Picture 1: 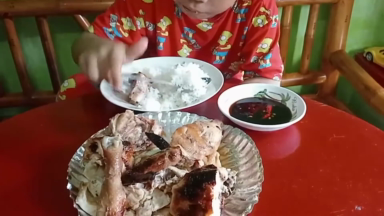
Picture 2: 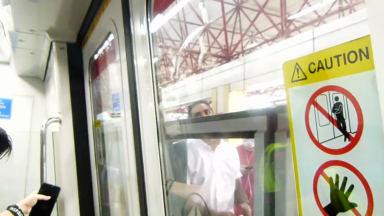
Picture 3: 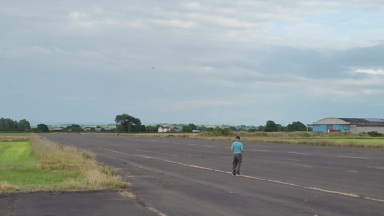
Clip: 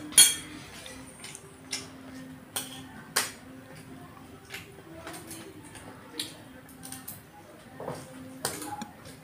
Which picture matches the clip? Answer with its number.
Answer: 1